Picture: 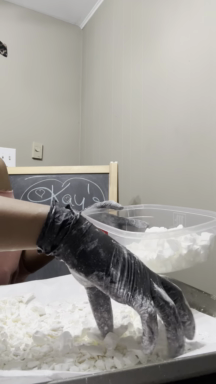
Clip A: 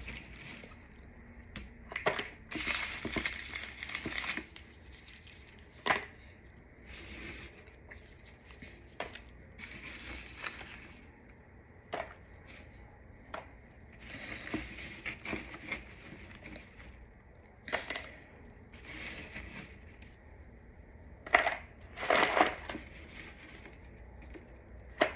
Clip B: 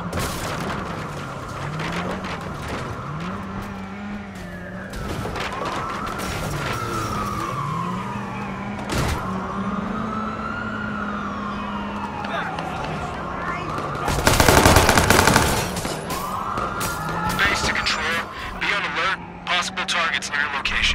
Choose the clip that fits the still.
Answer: A